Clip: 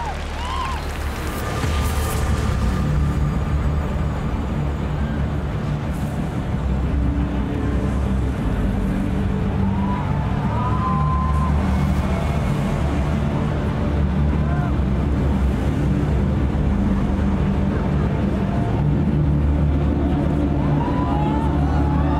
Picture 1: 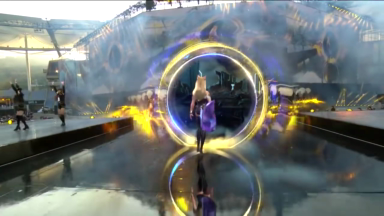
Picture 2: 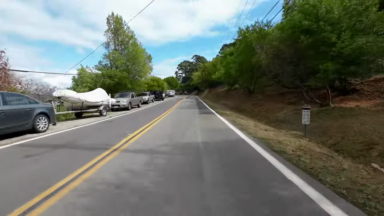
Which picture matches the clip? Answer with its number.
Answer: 1